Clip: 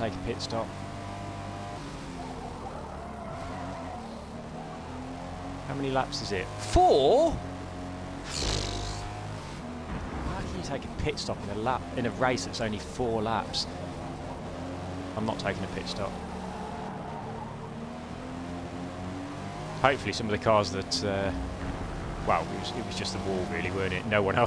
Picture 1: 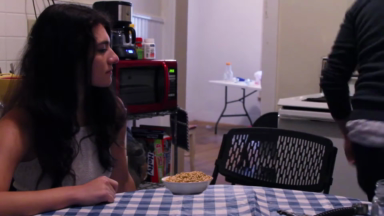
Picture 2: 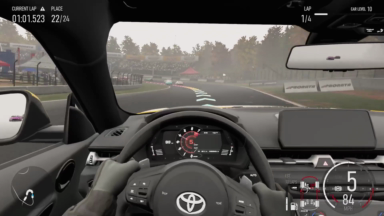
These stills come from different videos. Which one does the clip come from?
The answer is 2